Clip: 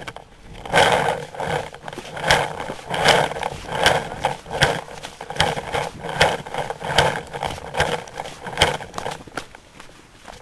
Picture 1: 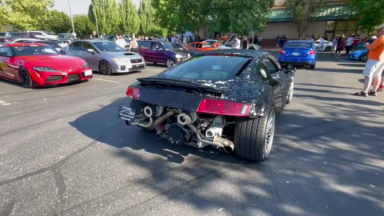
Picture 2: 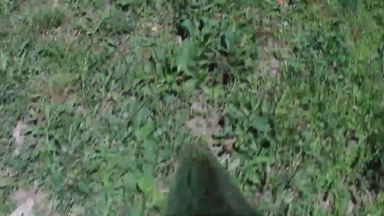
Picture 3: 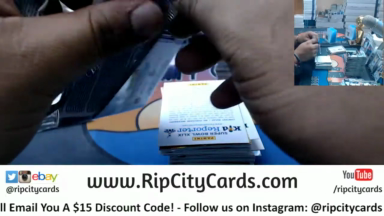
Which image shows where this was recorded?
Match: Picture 2